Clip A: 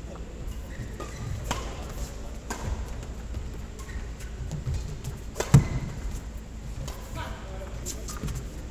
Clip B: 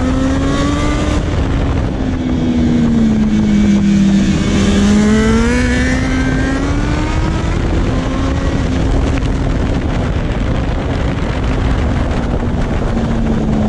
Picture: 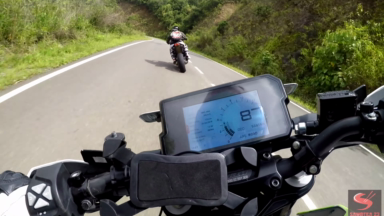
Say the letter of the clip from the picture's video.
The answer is B